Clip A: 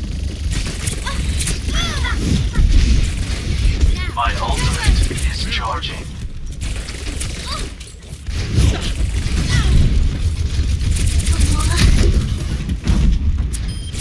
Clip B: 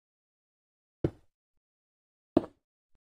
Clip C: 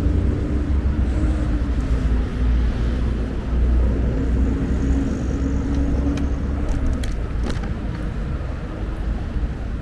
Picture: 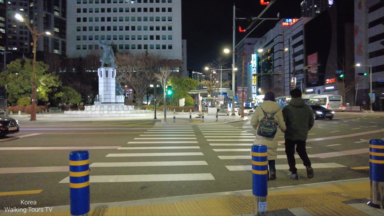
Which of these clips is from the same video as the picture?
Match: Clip C